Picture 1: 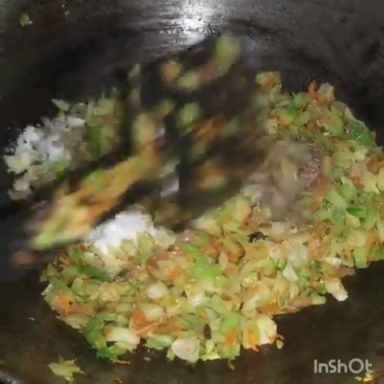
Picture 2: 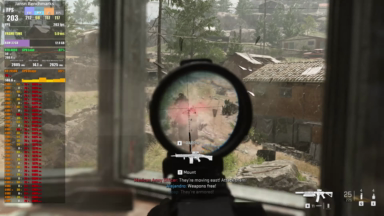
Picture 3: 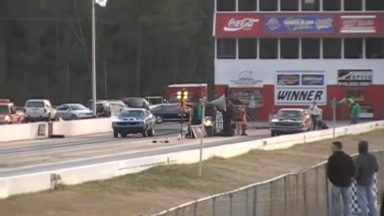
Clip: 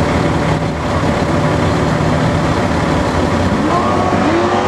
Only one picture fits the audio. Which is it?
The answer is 3